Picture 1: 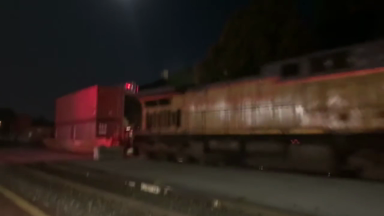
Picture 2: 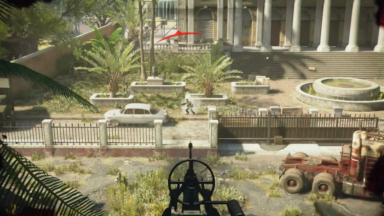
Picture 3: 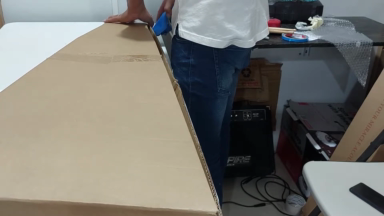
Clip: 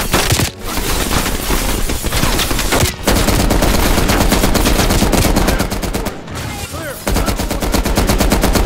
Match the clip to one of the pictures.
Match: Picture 2